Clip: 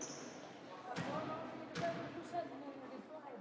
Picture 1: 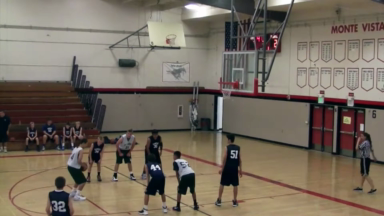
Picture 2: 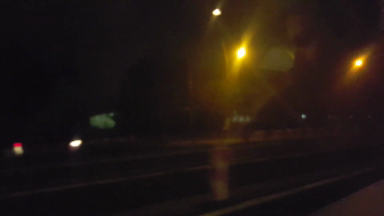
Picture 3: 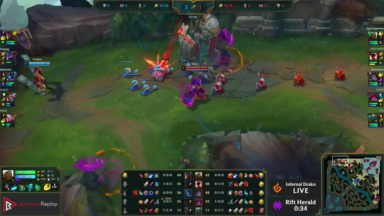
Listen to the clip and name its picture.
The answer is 1